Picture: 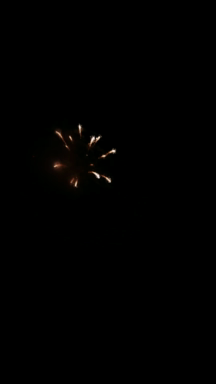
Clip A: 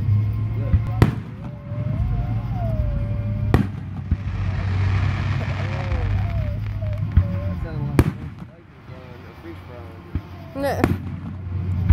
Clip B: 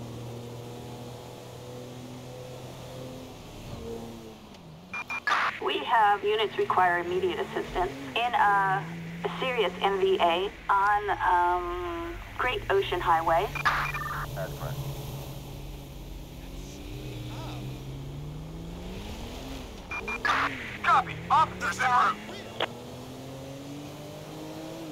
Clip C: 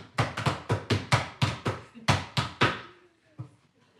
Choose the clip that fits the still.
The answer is A